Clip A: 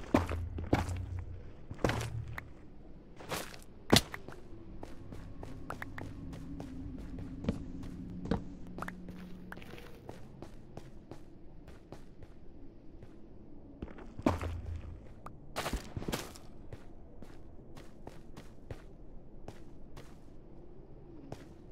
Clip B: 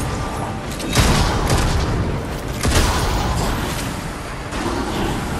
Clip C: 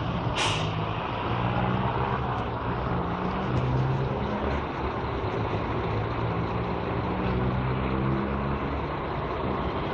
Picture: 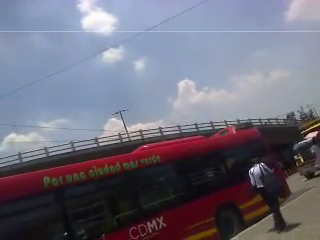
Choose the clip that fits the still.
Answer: C